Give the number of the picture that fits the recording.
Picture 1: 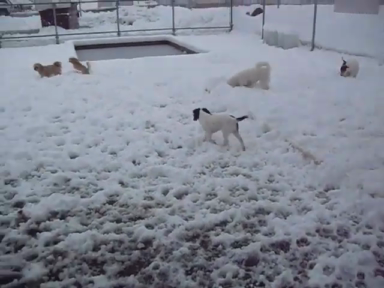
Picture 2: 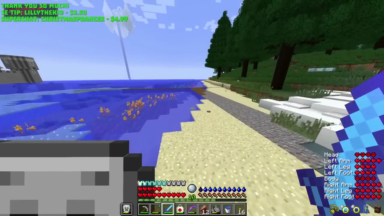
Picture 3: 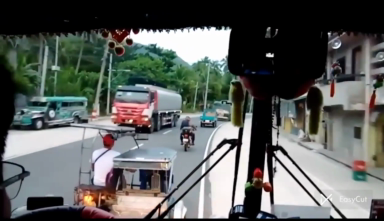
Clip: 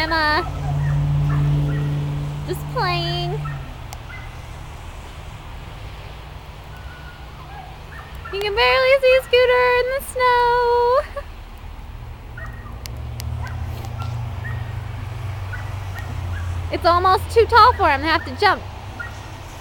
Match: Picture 1